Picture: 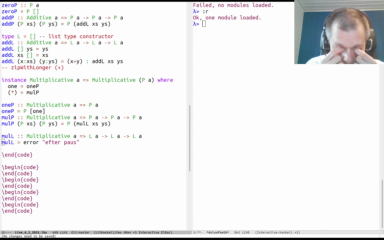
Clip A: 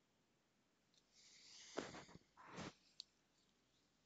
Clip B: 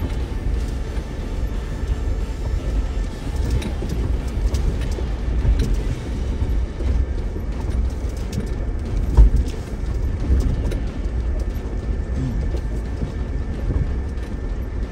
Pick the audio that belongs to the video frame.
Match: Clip A